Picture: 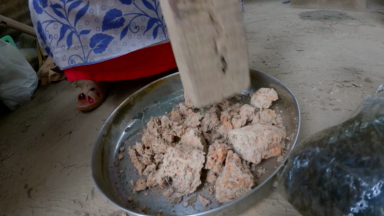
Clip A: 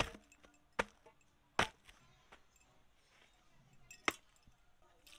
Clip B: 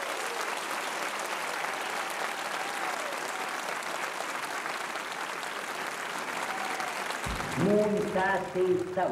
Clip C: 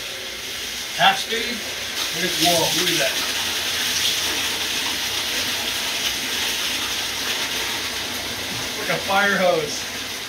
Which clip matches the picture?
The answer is A